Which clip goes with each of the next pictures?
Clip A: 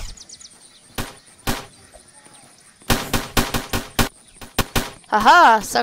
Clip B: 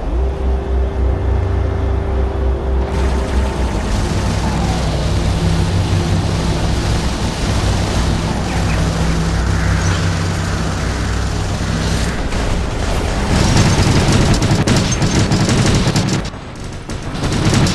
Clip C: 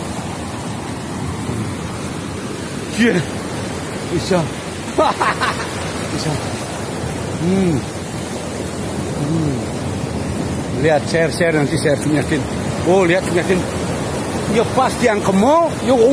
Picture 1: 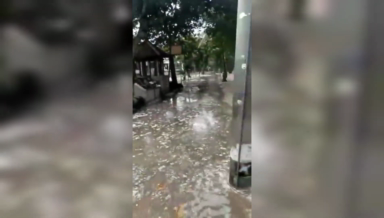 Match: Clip C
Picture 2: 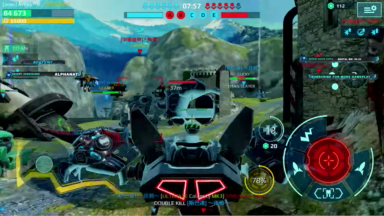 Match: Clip B